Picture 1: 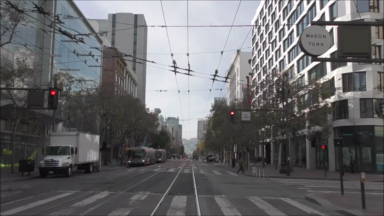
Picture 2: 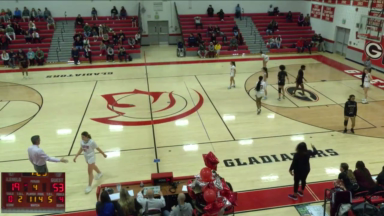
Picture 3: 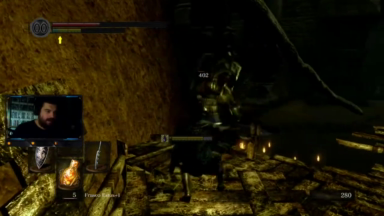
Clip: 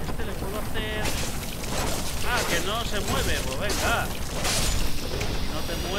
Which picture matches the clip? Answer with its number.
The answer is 3